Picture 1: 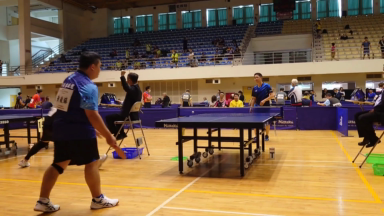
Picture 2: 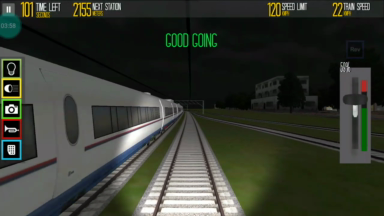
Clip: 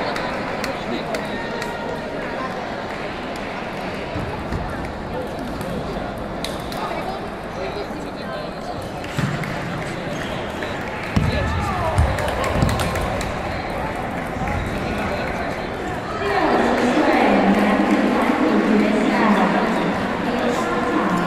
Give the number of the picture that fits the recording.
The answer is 1